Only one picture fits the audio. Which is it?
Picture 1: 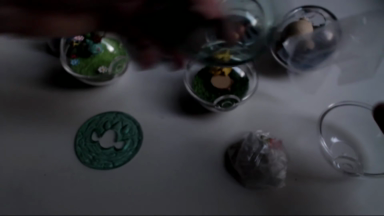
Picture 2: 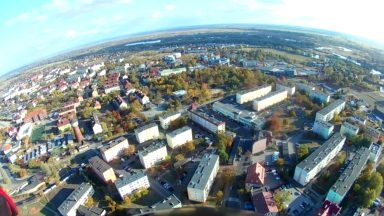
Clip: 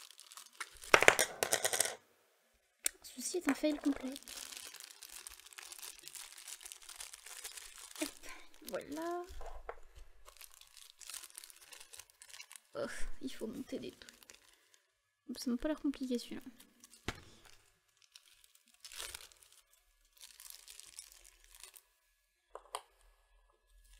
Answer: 1